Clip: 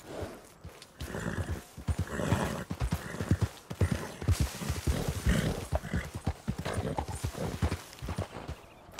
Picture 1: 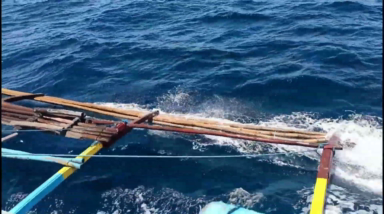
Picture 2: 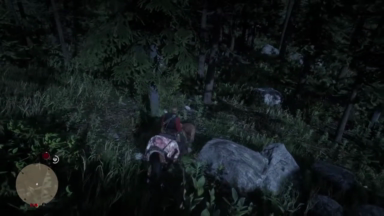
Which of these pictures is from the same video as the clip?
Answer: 2